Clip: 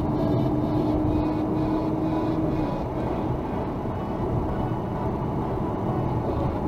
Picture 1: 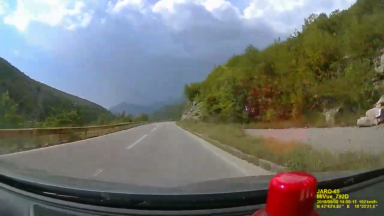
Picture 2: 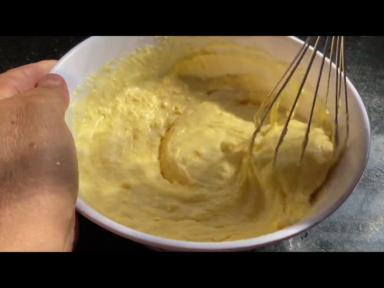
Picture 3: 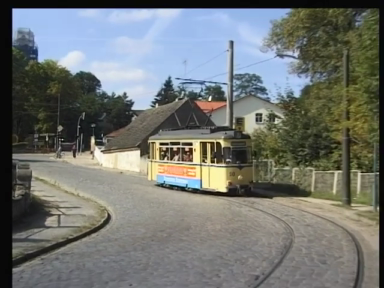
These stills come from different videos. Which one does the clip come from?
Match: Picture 1